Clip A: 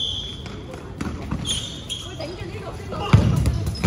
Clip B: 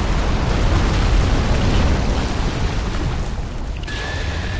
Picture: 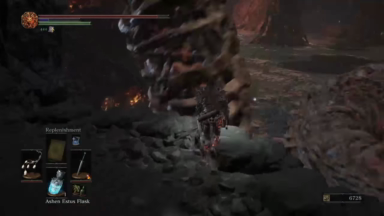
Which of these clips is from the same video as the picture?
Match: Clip B